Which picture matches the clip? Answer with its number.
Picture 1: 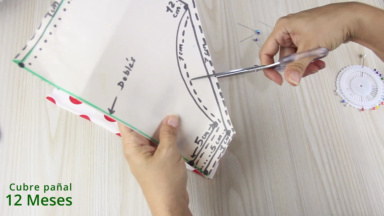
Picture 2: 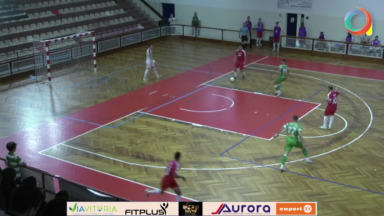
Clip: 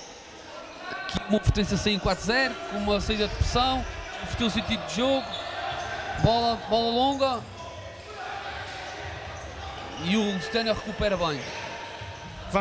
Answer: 2